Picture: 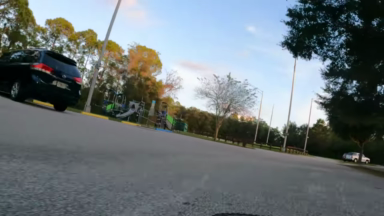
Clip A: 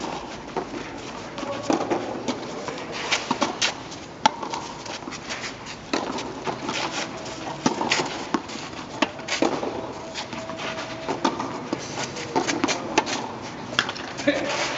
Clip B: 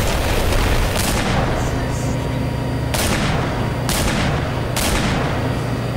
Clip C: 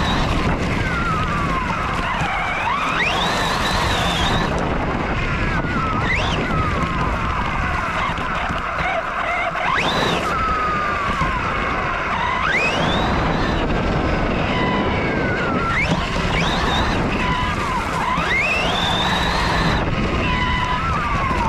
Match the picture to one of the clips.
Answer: C